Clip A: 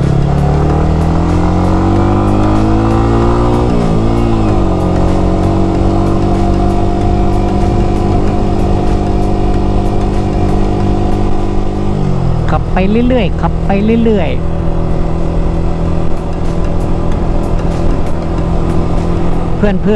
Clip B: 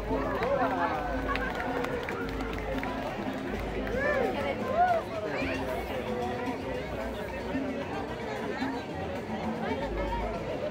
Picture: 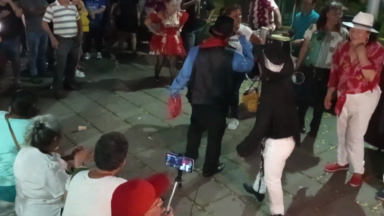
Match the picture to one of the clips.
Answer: B